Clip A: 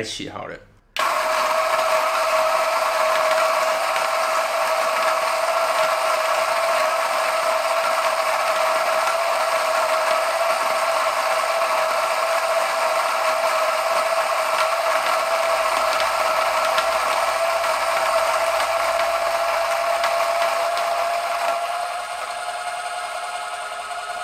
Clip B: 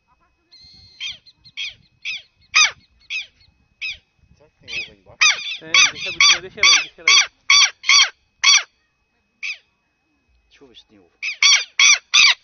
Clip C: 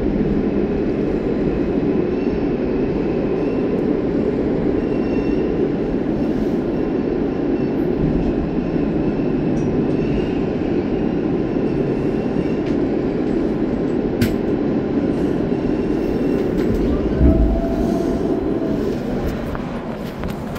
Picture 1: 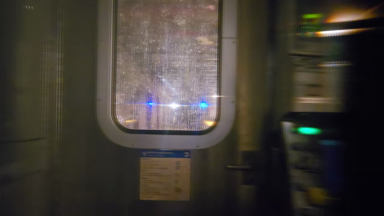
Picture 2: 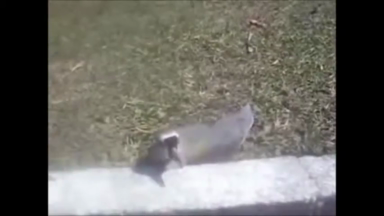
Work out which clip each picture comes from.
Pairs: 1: C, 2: B